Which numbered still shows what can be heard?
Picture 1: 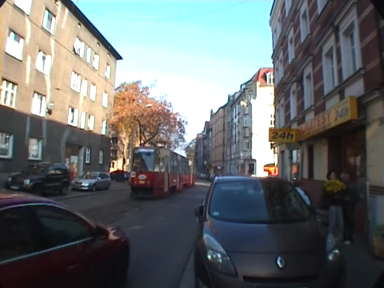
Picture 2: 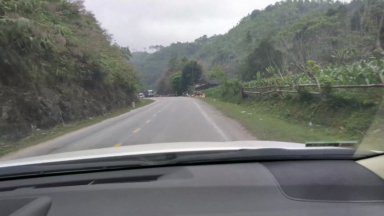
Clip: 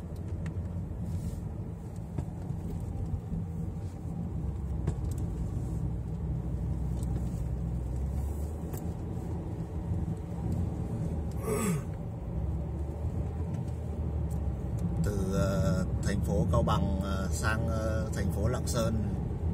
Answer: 2